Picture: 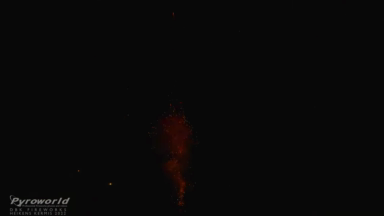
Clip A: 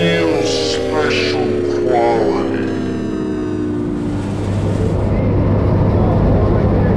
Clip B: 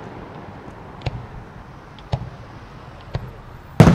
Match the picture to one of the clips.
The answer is B